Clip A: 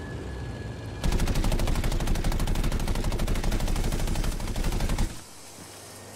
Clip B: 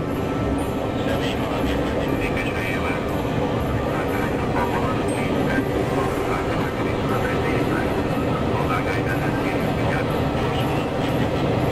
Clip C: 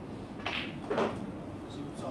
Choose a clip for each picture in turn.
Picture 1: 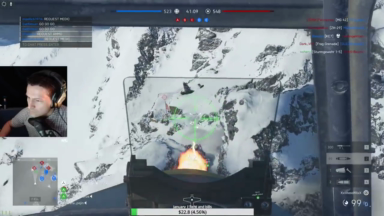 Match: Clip A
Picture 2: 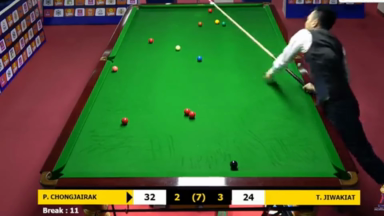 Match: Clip C